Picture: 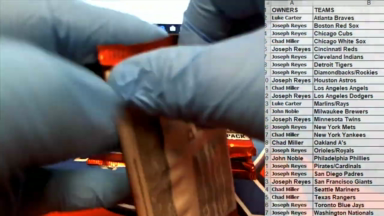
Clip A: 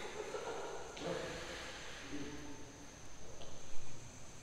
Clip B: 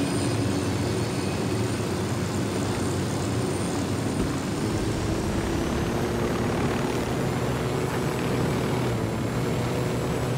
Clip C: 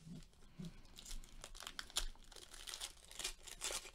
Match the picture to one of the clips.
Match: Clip C